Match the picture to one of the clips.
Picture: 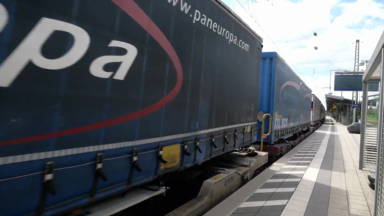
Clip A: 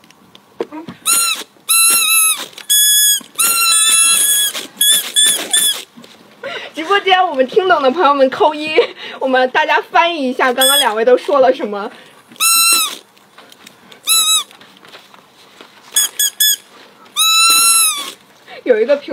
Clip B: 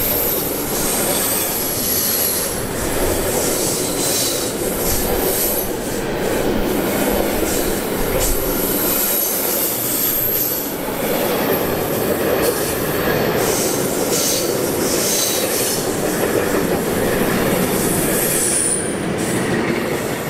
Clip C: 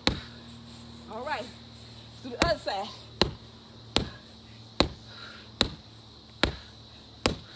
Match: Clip B